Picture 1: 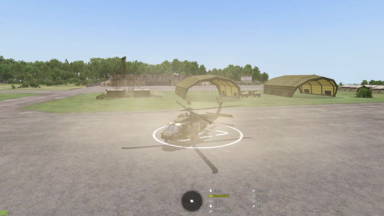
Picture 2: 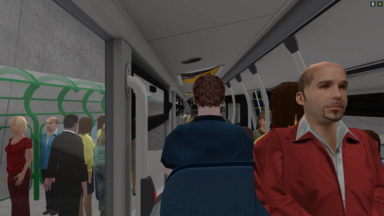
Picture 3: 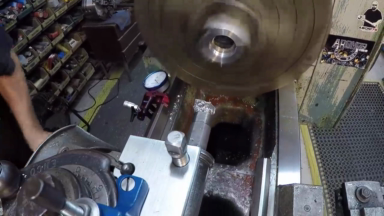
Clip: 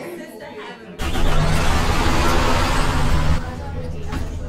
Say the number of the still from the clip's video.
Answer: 2